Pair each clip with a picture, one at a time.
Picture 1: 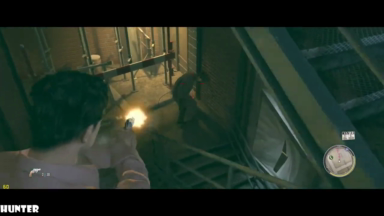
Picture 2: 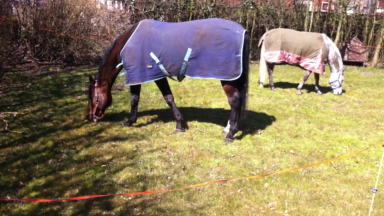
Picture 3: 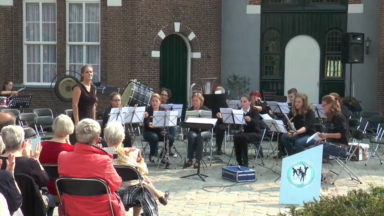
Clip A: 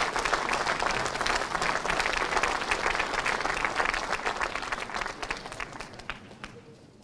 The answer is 3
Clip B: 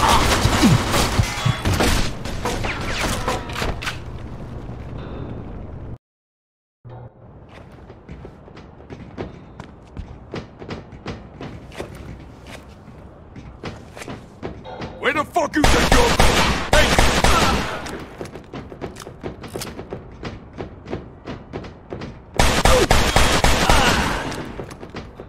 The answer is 1